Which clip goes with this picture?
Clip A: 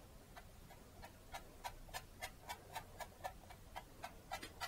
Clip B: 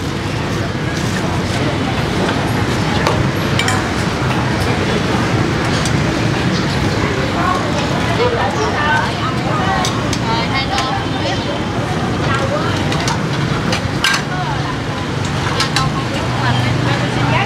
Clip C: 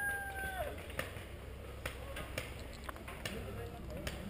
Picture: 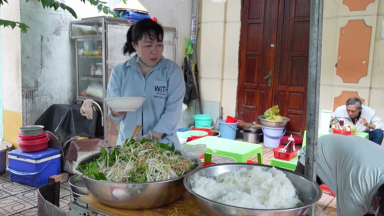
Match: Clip B